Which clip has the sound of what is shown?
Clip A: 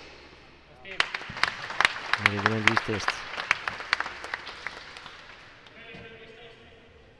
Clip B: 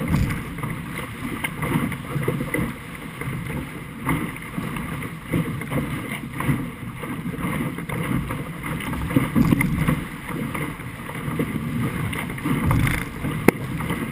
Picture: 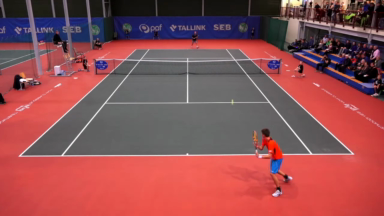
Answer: A